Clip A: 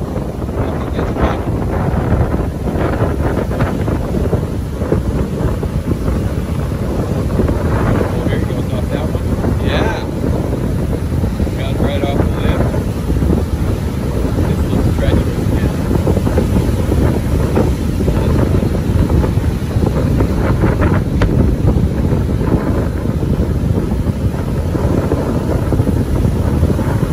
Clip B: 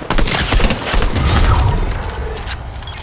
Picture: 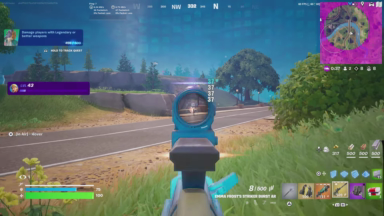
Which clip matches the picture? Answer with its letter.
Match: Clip B